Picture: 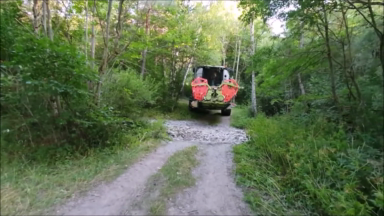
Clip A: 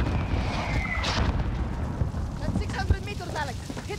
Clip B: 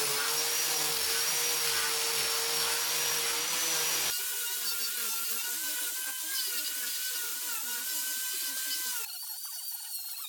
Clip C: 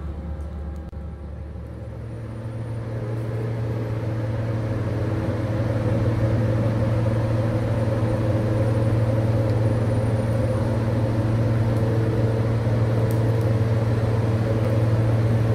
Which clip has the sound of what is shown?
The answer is C